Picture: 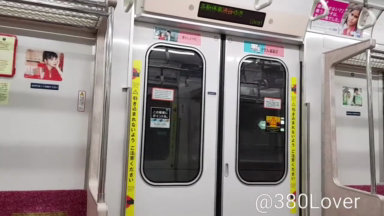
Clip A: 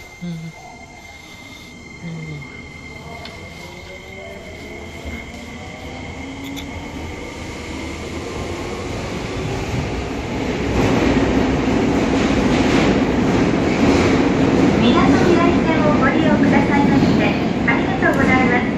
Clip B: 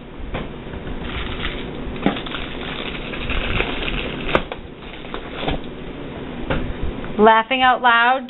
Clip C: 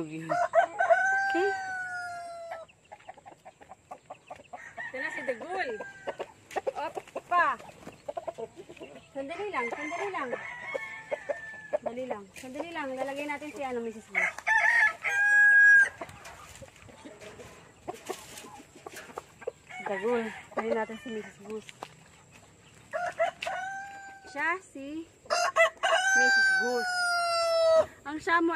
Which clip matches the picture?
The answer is A